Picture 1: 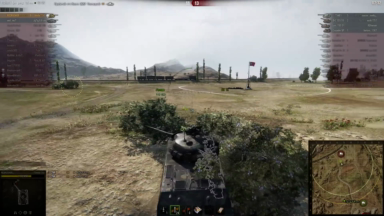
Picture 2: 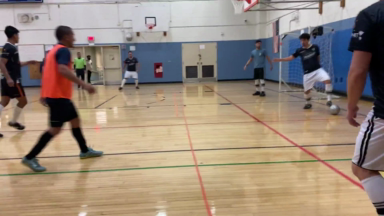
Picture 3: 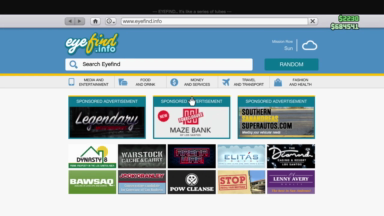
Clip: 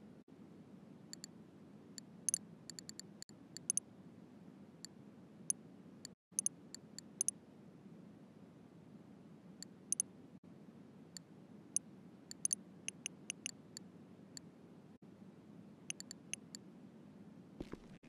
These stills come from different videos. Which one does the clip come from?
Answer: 3